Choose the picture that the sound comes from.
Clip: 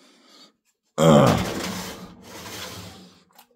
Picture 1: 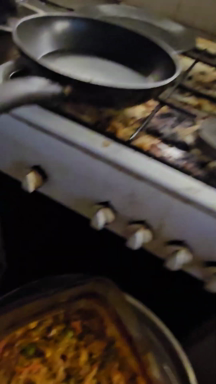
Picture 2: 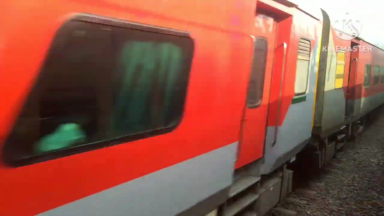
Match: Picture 1